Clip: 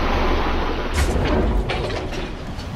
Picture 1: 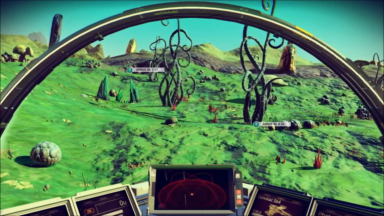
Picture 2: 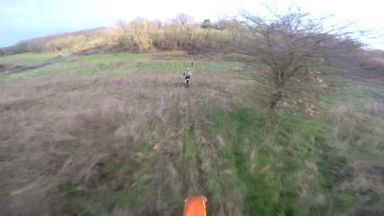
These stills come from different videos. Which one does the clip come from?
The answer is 1